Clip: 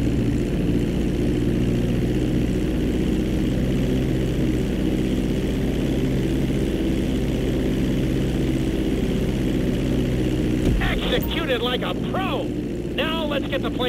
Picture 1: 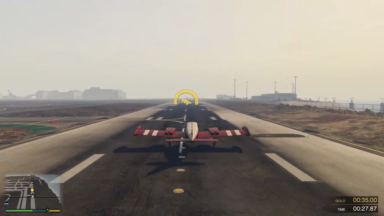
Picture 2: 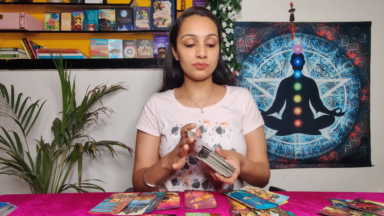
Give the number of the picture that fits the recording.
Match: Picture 1